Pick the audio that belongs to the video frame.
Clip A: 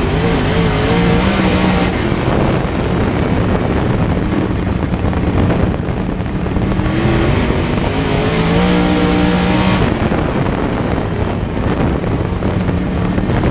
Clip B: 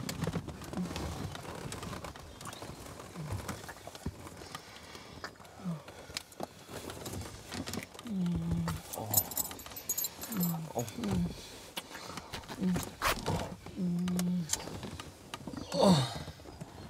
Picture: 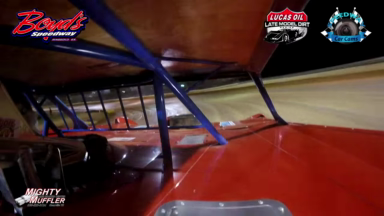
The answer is A